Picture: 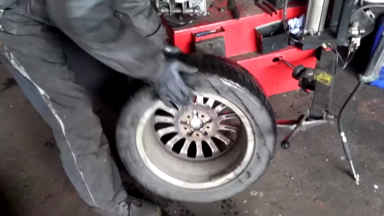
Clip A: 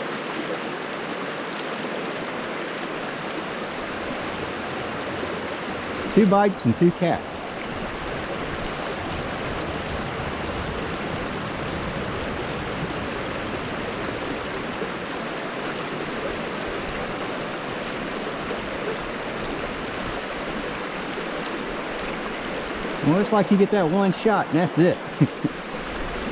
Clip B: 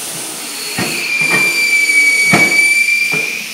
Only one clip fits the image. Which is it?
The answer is B